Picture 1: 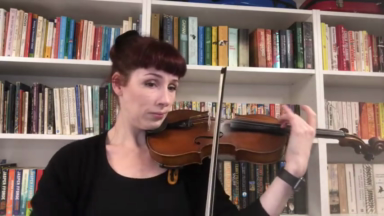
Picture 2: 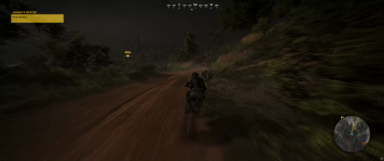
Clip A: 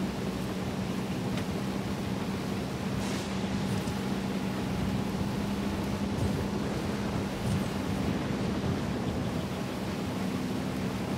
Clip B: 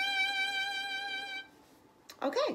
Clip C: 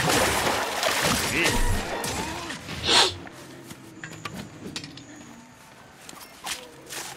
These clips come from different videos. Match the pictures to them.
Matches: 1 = B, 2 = A